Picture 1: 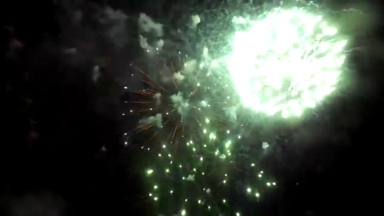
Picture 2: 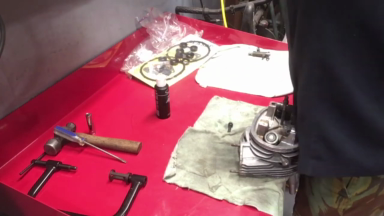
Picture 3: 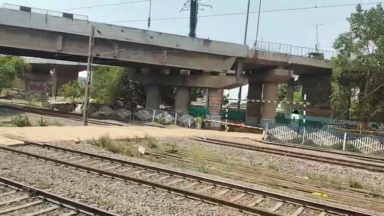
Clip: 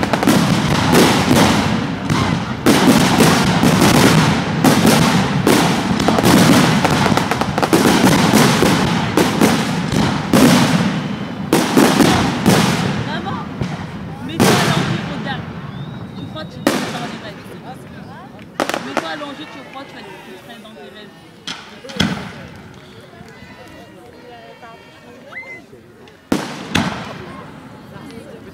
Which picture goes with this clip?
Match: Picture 1